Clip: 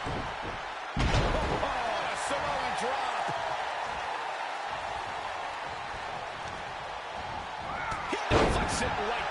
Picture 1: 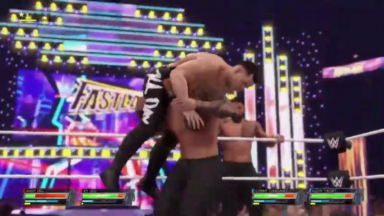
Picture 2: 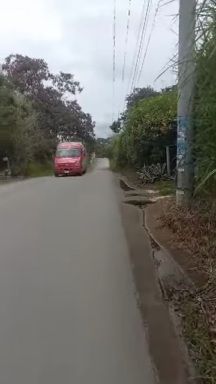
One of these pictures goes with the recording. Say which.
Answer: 1